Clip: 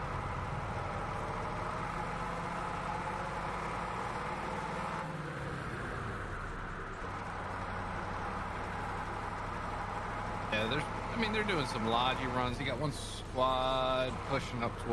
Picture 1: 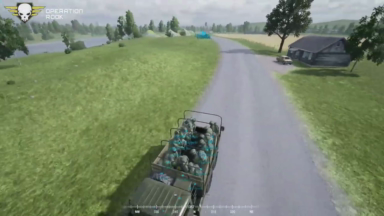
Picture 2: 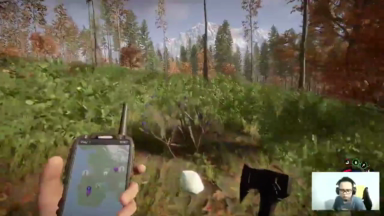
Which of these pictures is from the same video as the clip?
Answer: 1